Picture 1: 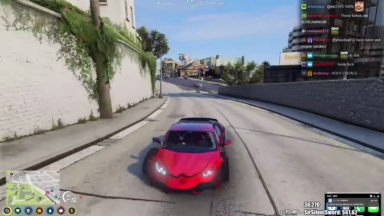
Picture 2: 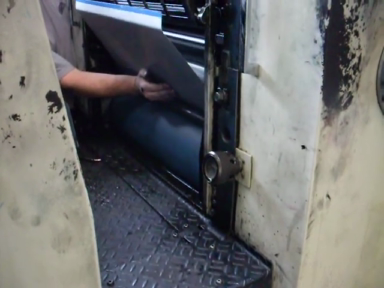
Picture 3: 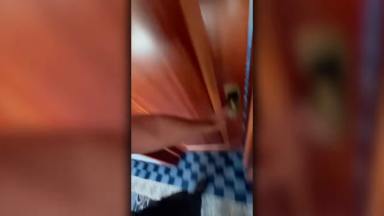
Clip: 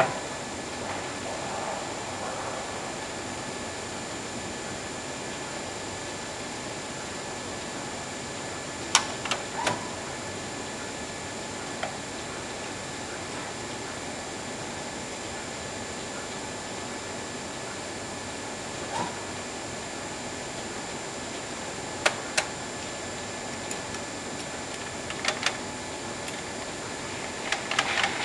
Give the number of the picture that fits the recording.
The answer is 2